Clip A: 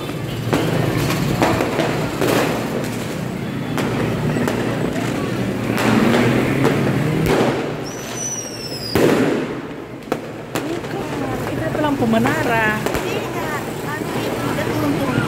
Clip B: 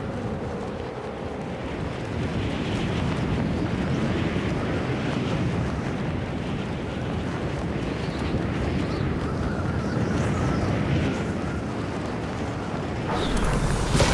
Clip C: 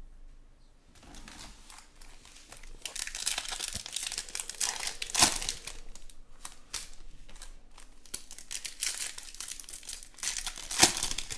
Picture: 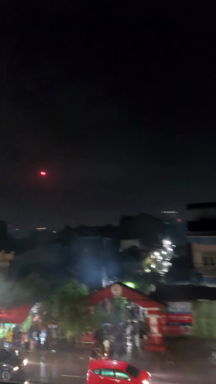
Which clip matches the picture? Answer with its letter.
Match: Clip A